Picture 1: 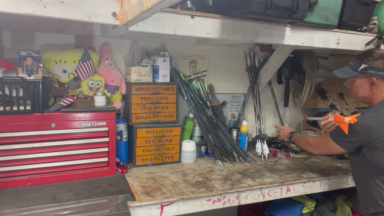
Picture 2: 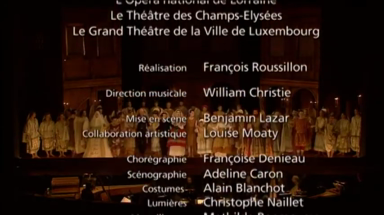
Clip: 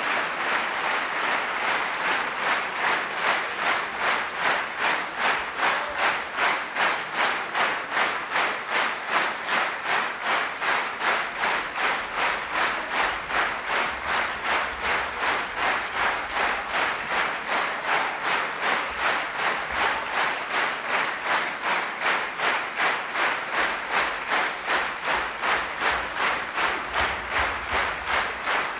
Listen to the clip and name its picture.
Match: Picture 2